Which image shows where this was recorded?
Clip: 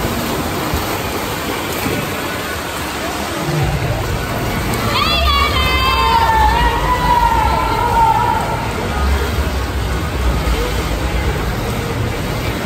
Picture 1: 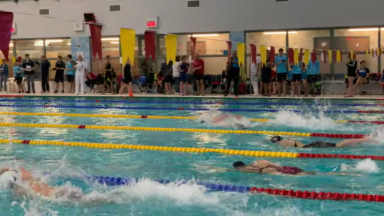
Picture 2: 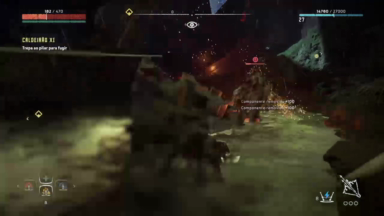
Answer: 1